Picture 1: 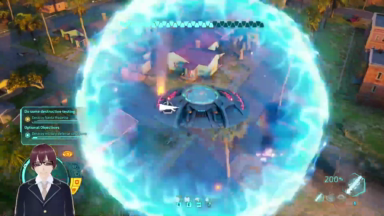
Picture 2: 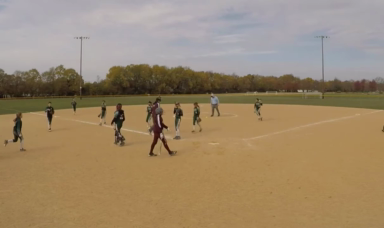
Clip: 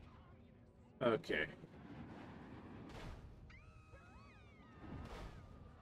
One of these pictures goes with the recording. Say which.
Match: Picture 1